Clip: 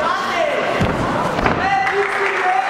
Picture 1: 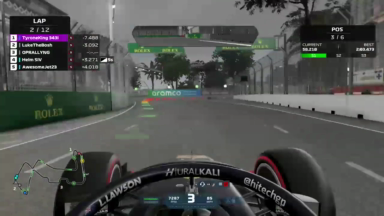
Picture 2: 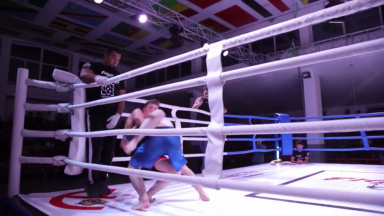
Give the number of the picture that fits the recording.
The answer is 2